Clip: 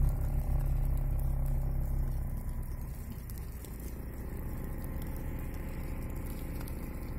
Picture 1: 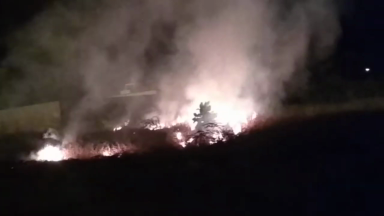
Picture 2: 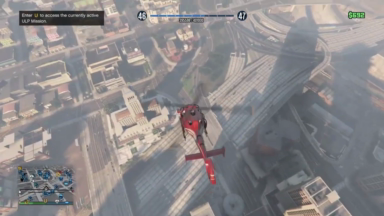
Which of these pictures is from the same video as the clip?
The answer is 1